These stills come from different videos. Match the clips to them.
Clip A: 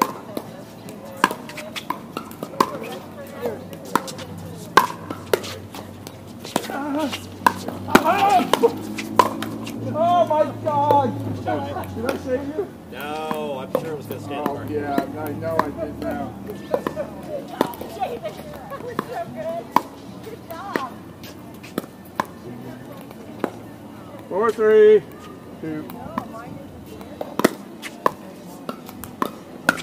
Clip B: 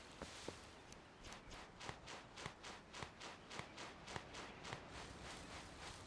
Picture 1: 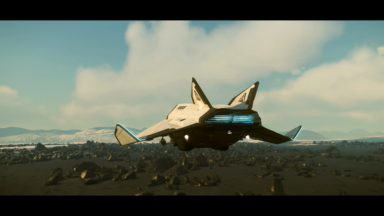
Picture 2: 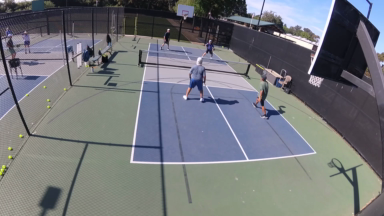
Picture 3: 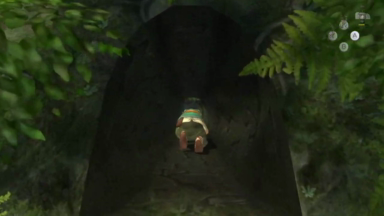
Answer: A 2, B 3